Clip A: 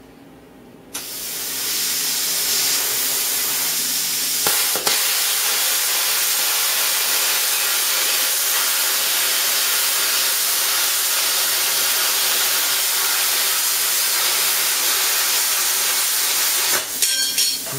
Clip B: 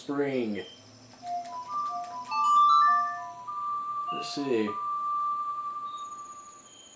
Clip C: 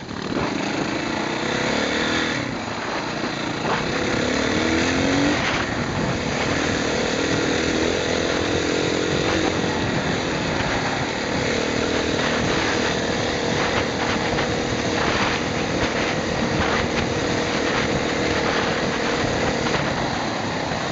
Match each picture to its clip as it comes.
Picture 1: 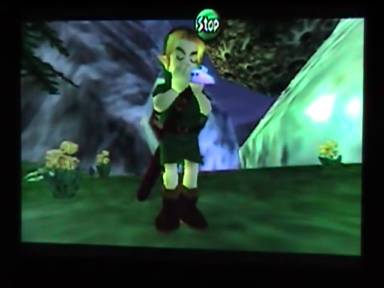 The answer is B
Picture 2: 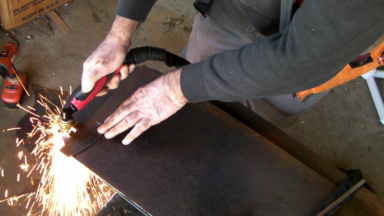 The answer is A